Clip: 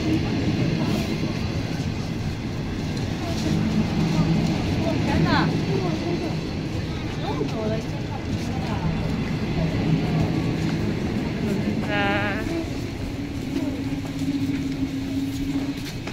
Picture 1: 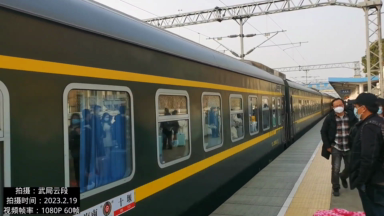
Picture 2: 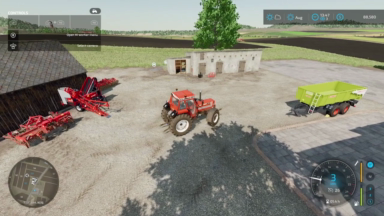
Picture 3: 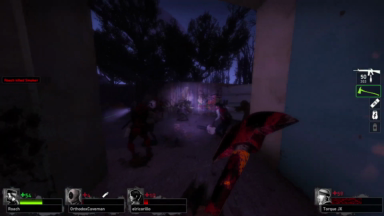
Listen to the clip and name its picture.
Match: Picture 1